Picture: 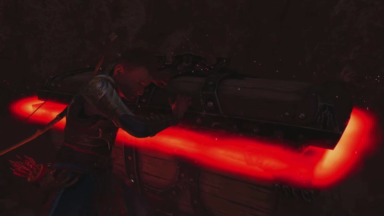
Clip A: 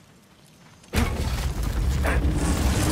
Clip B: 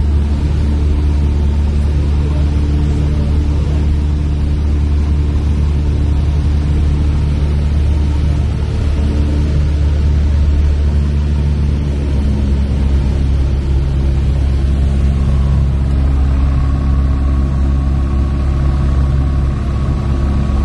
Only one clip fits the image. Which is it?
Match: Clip A